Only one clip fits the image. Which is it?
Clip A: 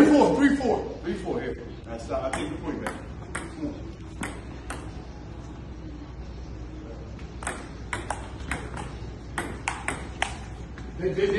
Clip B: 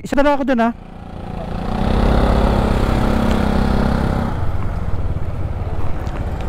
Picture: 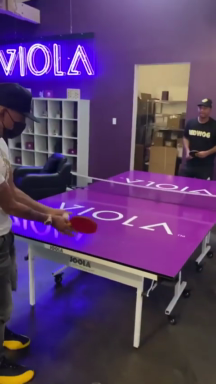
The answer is A